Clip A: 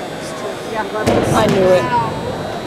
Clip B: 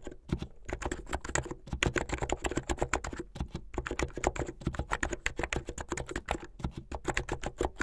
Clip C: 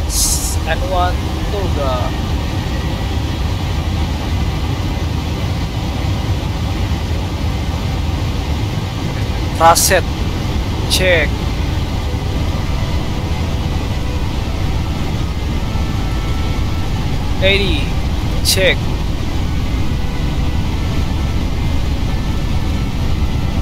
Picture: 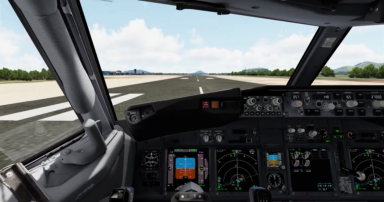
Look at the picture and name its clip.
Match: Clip C